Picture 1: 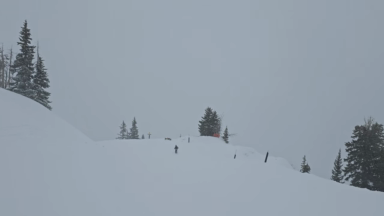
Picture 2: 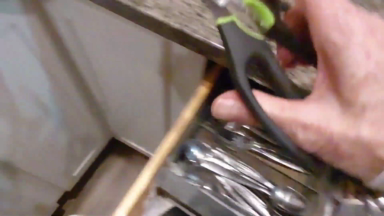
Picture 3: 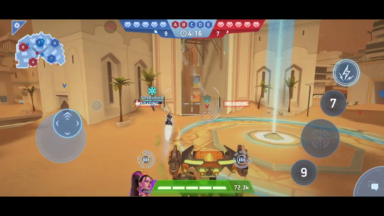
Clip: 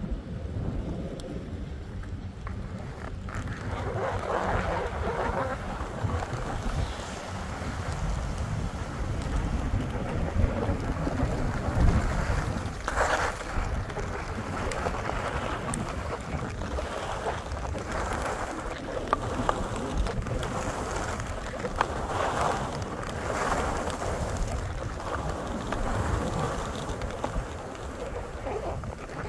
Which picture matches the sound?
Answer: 1